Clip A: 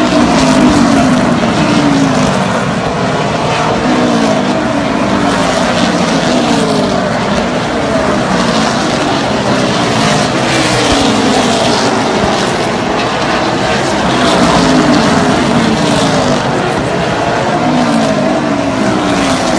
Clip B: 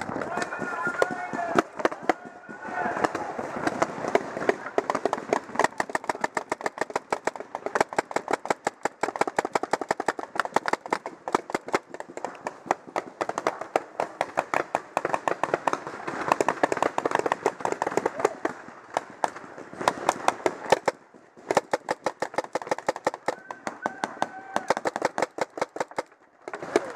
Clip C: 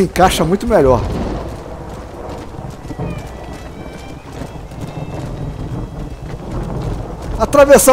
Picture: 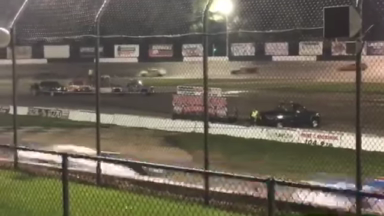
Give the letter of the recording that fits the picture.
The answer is A